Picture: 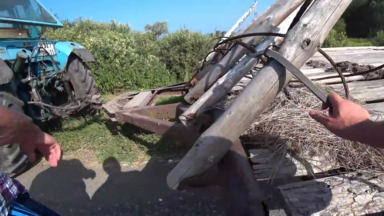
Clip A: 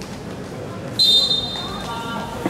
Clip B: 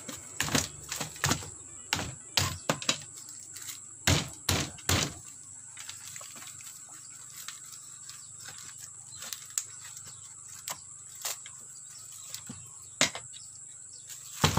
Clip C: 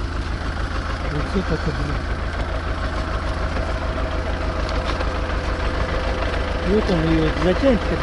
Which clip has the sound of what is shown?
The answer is C